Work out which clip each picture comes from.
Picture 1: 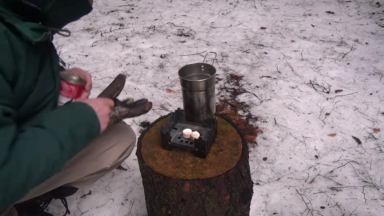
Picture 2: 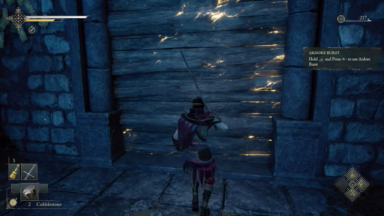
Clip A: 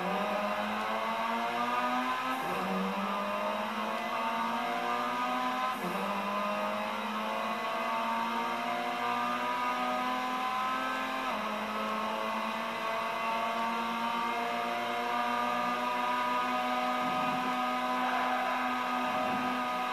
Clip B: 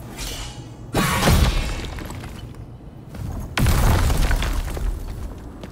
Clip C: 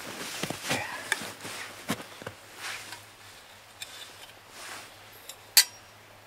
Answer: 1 C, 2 B